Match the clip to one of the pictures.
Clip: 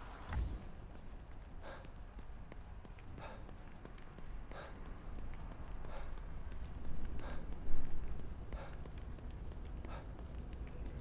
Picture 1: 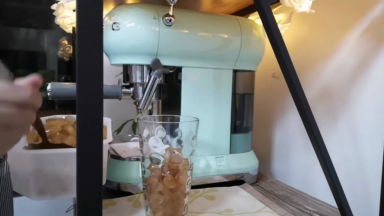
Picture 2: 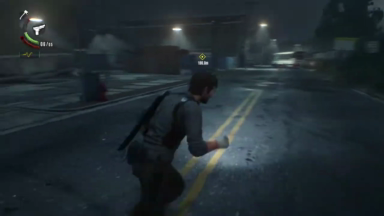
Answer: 2